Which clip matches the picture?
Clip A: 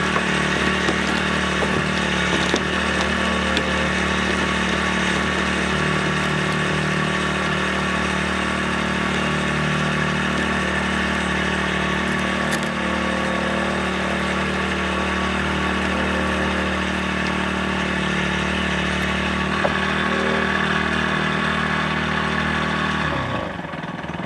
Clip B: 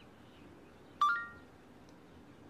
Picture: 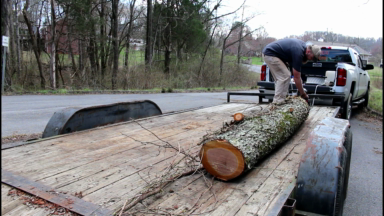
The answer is A